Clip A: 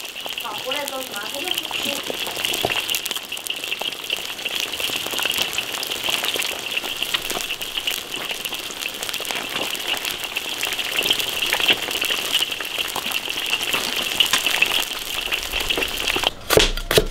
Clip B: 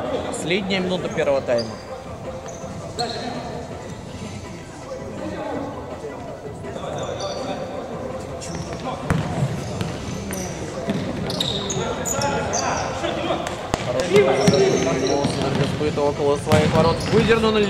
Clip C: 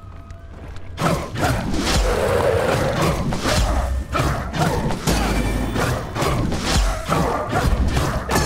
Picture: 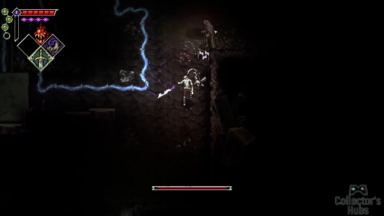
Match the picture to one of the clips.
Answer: C